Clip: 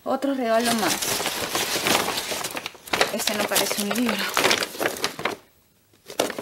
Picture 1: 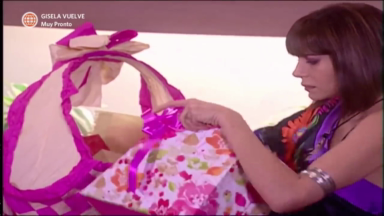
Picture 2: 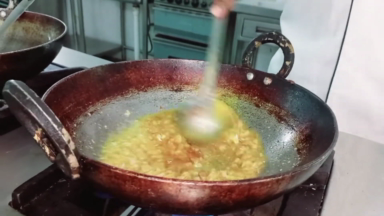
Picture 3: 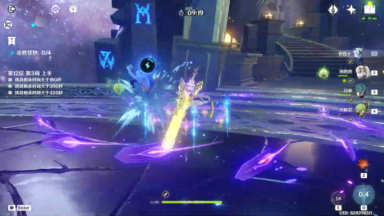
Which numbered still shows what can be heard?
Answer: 1